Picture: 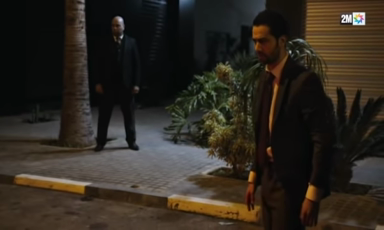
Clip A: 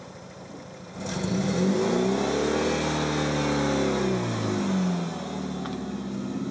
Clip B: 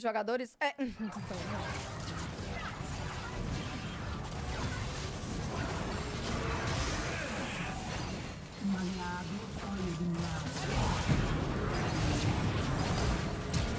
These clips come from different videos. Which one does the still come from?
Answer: A